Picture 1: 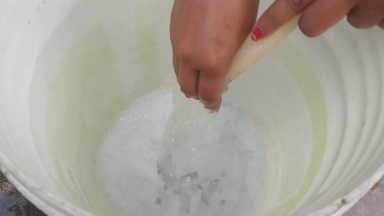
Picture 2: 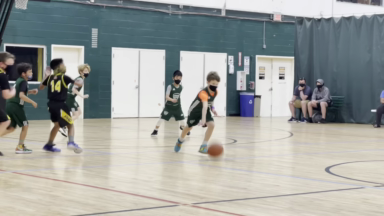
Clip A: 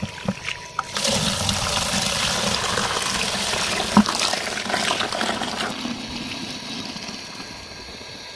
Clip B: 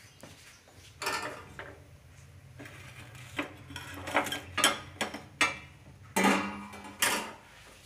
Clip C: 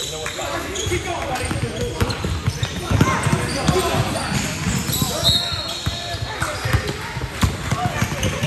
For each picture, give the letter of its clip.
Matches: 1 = A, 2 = C